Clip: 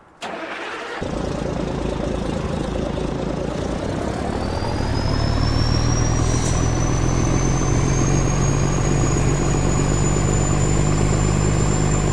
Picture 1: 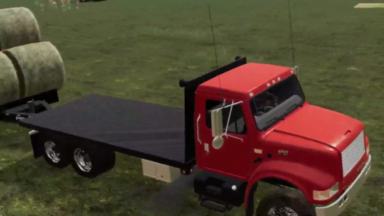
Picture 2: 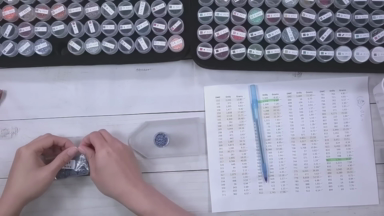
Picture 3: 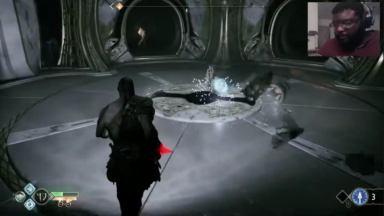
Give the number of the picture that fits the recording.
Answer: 1